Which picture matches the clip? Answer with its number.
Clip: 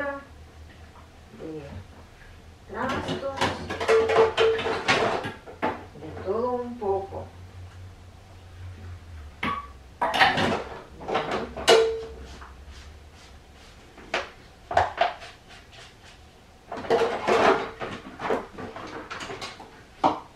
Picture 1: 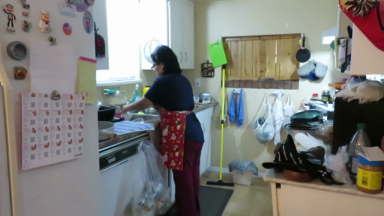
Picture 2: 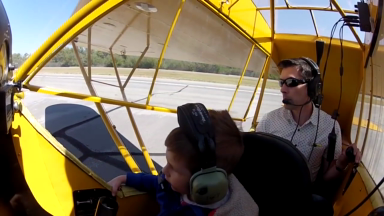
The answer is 1